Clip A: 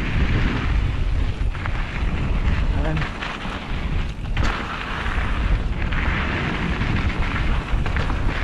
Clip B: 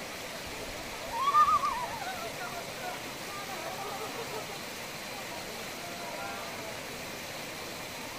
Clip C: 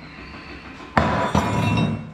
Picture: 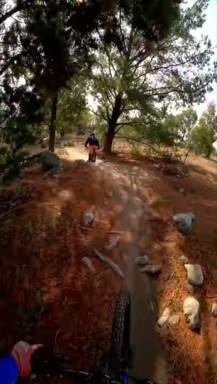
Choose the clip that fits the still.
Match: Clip A